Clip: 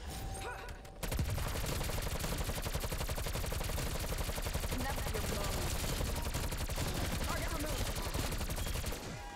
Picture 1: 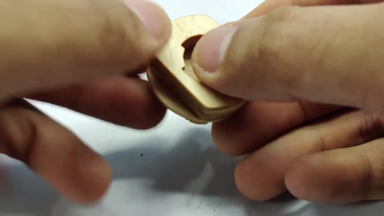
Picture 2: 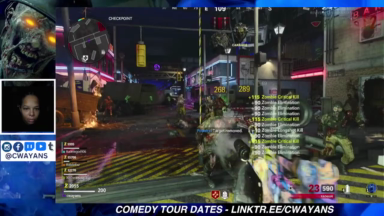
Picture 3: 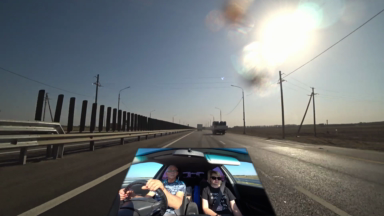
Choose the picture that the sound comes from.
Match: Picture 2